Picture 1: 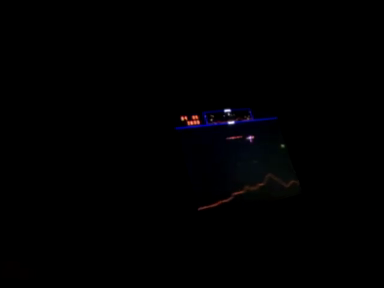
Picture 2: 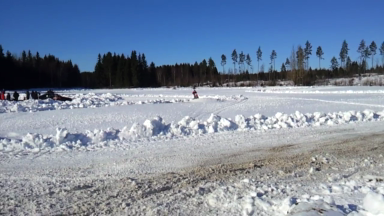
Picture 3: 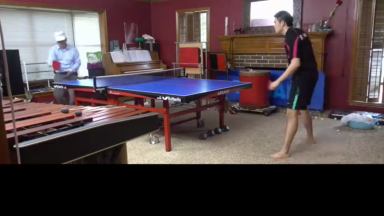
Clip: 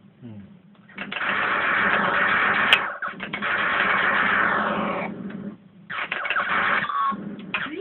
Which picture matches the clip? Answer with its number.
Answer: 1